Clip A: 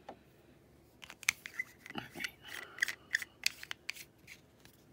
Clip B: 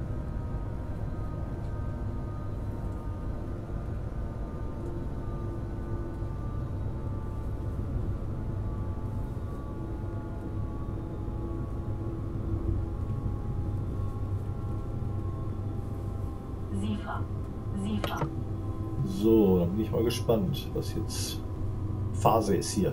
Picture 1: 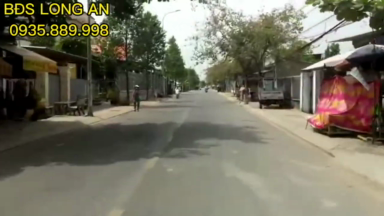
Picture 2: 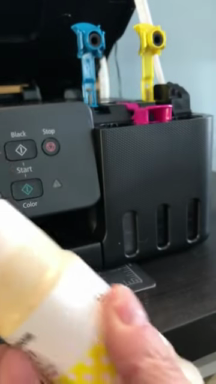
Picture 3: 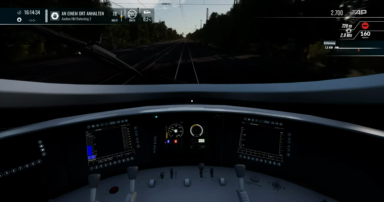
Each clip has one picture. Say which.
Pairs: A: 2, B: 3